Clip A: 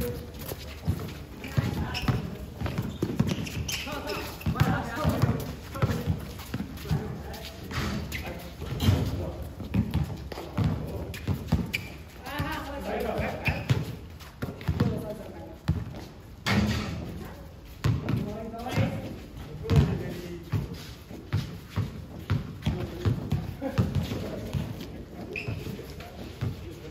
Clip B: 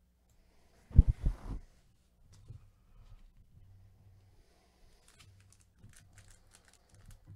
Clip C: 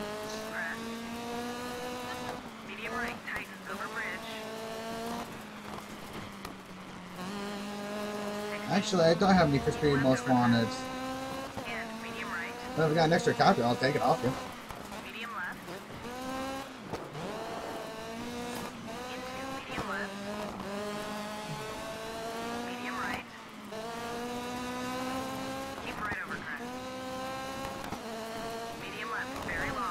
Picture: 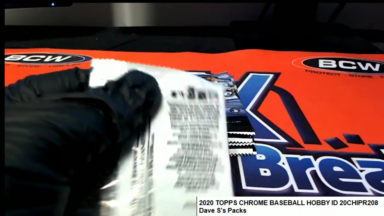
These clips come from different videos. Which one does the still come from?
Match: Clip B